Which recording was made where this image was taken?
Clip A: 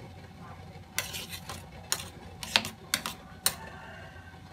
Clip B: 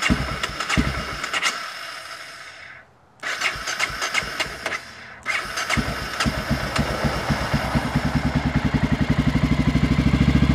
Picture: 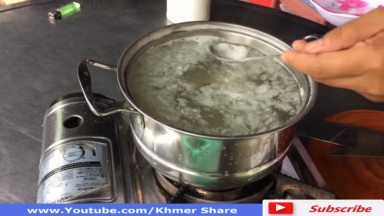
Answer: A